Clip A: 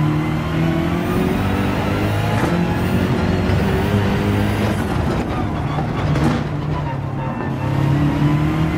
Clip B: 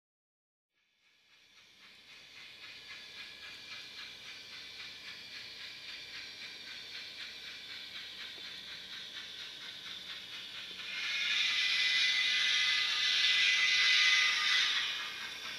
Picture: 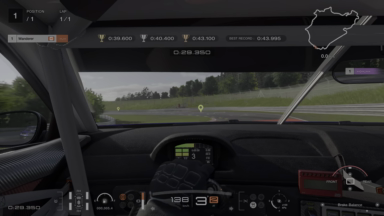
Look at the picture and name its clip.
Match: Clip A